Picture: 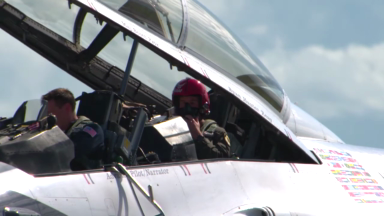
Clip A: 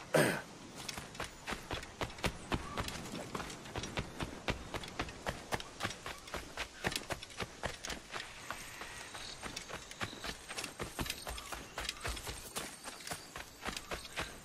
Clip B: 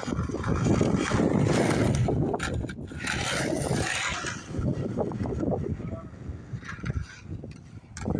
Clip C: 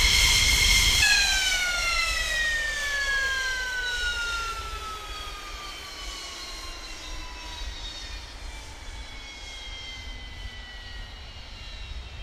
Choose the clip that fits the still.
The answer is C